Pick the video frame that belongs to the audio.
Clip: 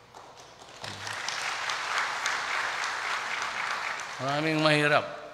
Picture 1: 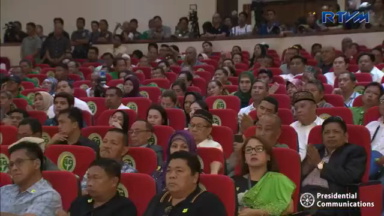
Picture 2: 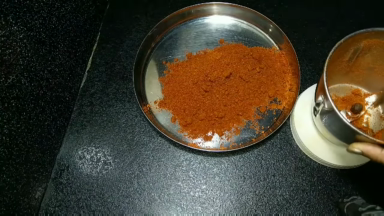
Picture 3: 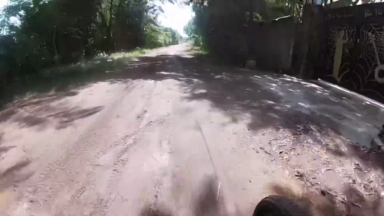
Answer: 1